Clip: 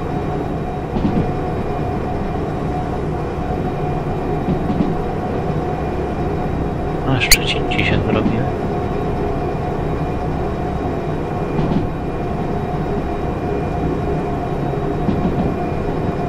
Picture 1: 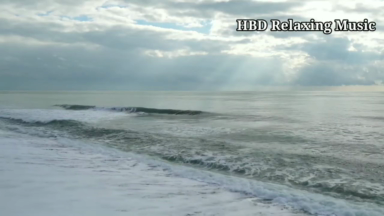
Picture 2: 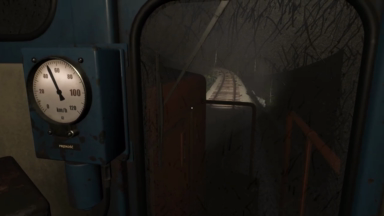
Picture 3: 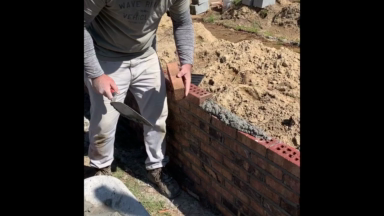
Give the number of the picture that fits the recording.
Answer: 2